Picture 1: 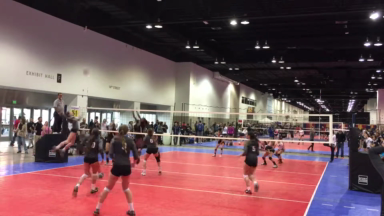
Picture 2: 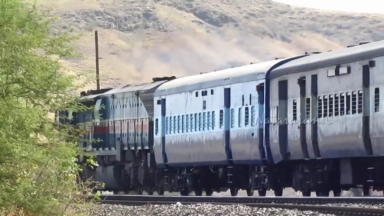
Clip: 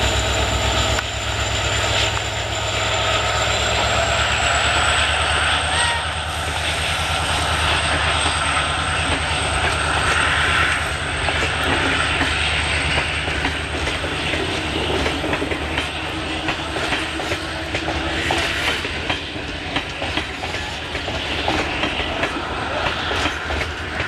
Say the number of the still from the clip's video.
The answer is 2